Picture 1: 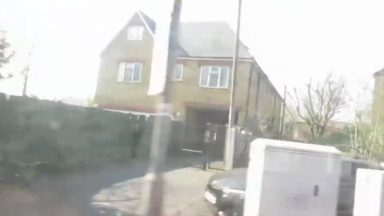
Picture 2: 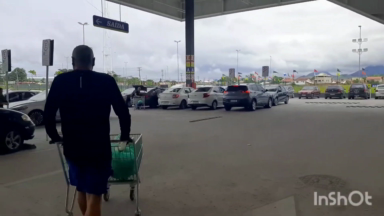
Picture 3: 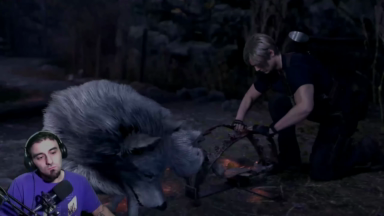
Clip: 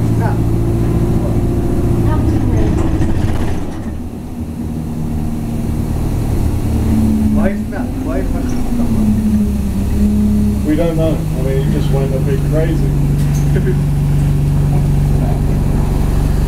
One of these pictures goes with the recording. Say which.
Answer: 1